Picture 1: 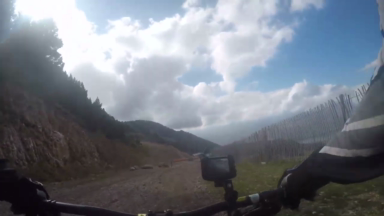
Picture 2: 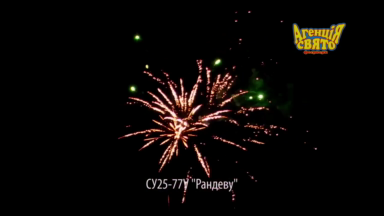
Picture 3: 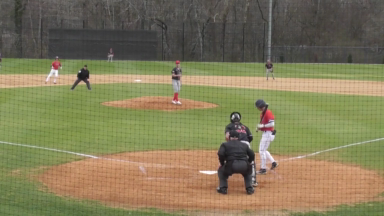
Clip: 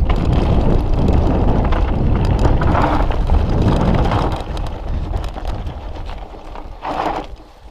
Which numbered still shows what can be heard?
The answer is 1